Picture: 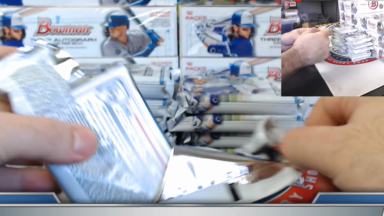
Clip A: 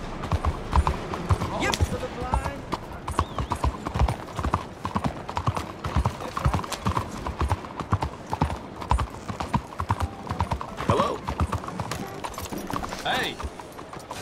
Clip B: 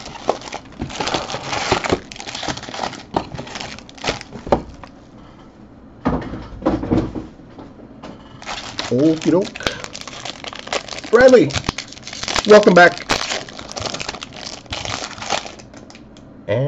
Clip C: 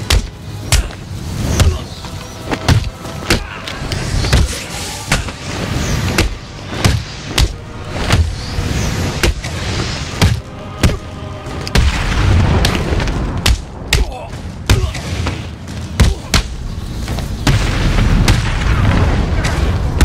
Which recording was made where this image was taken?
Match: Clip B